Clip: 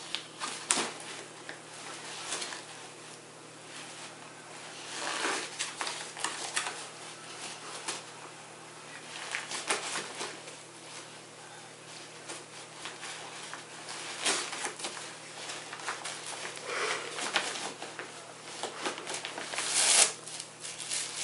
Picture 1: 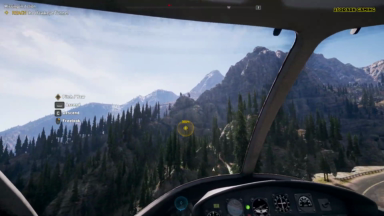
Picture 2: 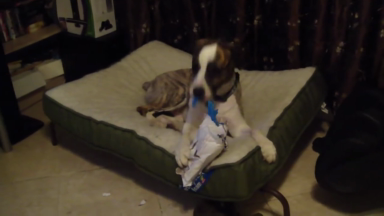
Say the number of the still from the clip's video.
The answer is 2